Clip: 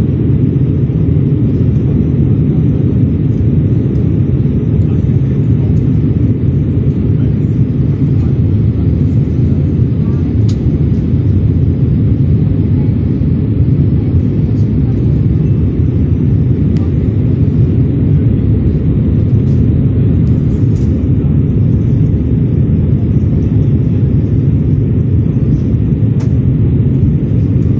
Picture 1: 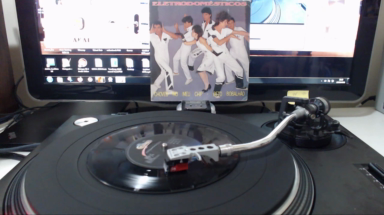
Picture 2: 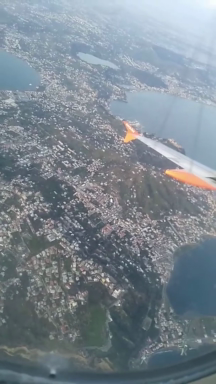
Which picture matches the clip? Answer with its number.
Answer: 2